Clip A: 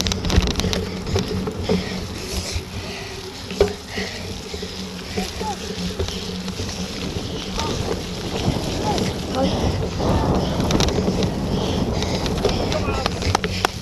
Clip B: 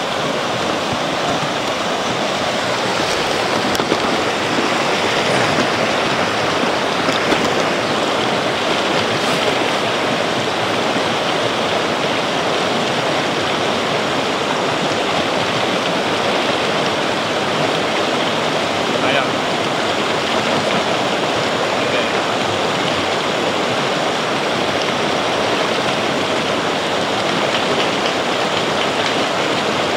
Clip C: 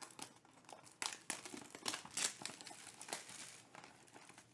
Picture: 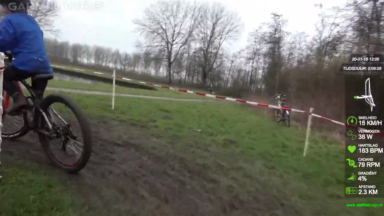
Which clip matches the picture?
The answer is A